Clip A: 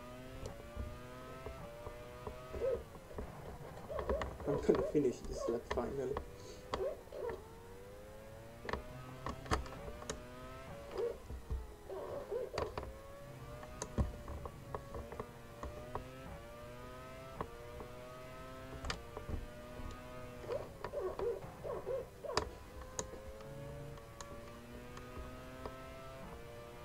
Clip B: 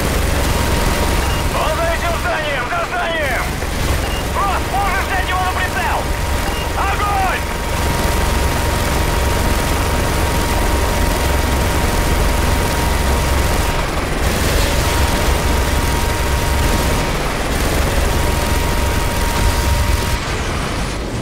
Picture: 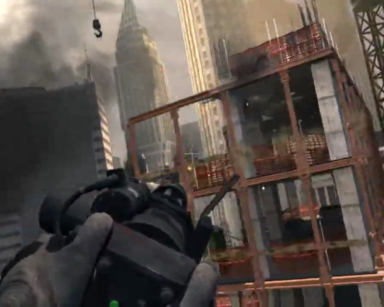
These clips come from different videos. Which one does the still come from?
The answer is B